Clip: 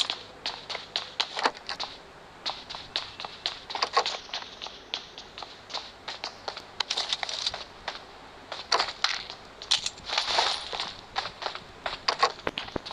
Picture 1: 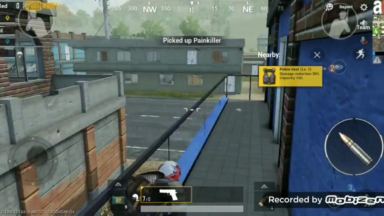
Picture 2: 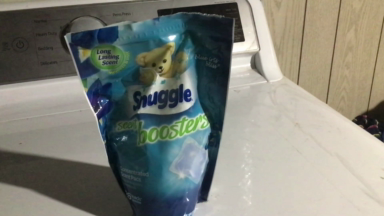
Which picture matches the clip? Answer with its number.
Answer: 1